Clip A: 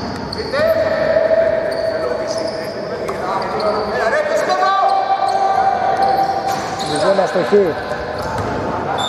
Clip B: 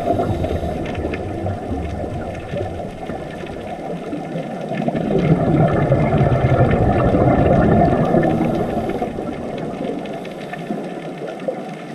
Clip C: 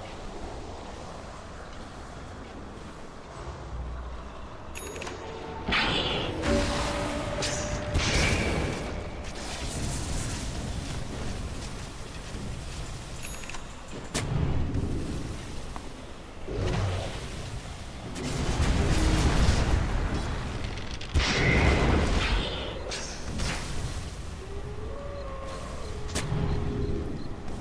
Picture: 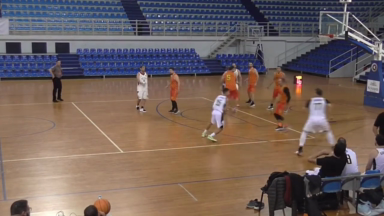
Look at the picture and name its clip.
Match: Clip A